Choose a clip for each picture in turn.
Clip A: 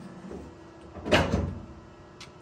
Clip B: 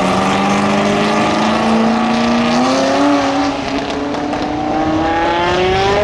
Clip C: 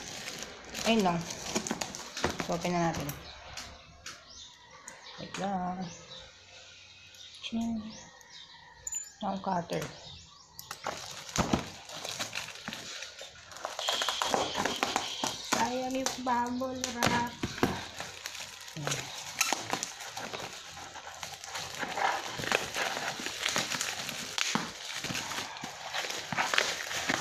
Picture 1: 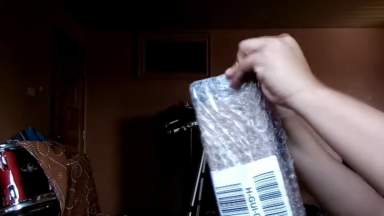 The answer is C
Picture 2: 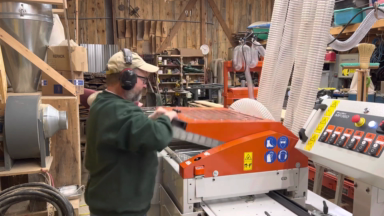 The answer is A